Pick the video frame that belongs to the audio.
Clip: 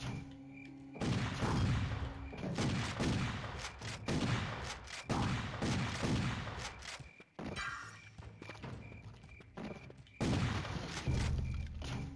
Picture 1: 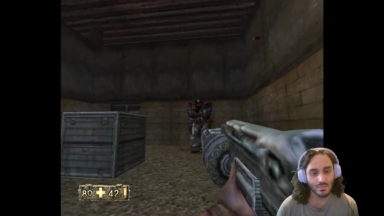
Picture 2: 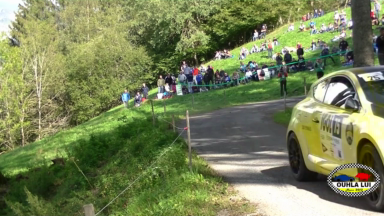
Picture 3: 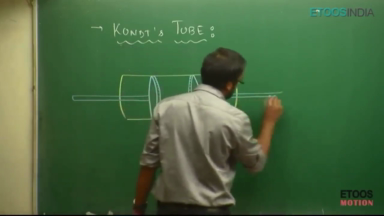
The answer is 1